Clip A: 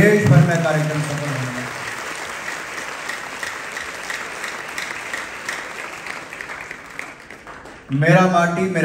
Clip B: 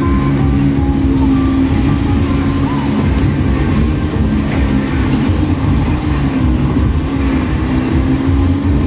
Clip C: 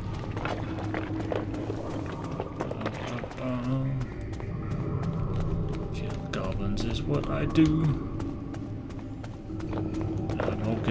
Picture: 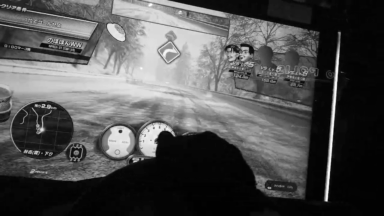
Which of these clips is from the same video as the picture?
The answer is B